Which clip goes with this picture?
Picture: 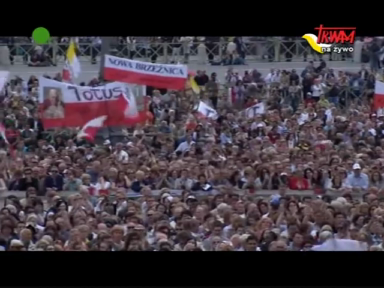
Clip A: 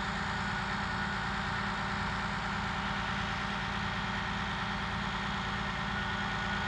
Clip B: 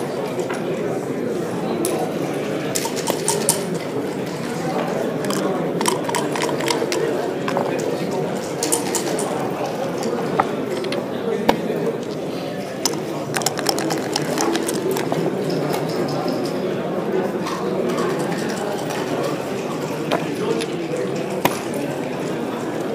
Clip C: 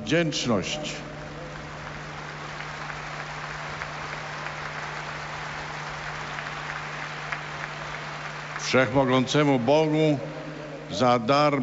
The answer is C